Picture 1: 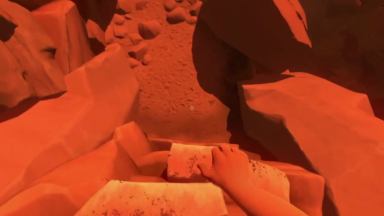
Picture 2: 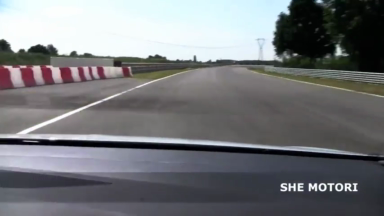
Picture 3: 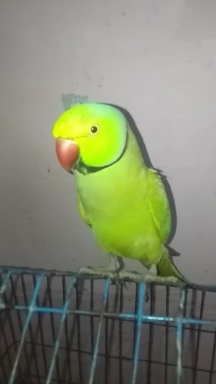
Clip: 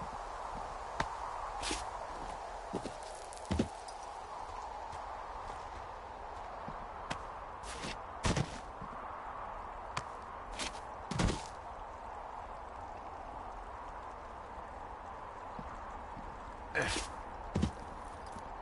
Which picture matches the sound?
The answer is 1